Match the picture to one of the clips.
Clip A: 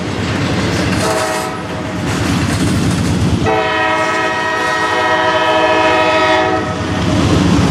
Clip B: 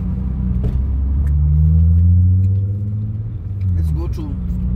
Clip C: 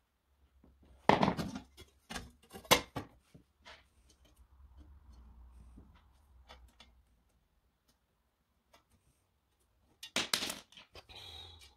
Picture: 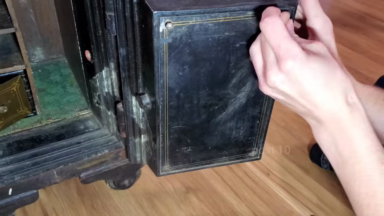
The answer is C